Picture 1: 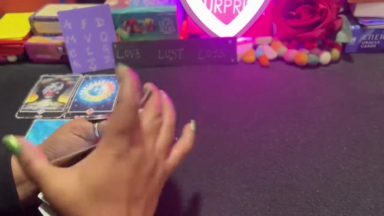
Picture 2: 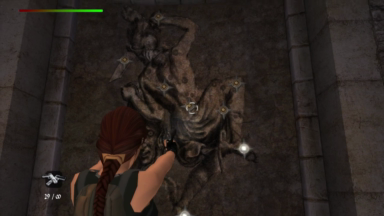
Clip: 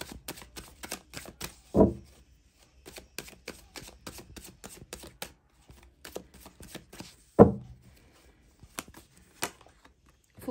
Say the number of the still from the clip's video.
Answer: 1